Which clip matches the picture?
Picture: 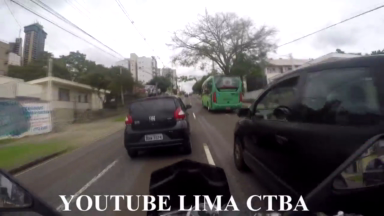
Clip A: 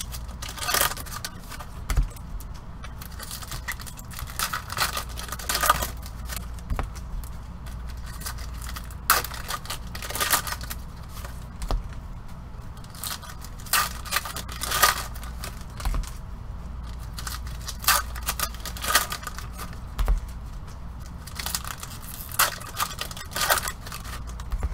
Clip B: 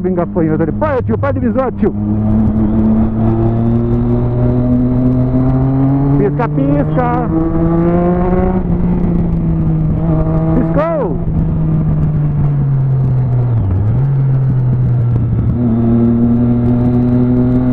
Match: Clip B